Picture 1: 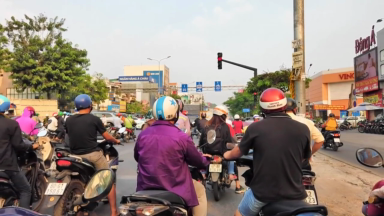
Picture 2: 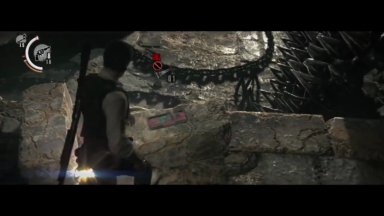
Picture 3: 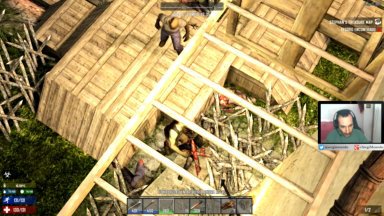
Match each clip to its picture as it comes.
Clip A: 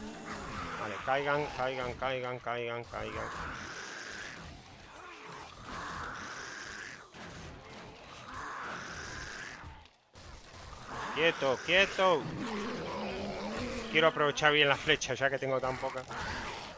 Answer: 3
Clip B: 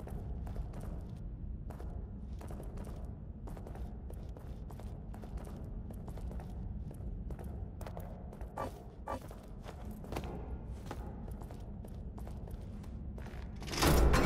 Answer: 2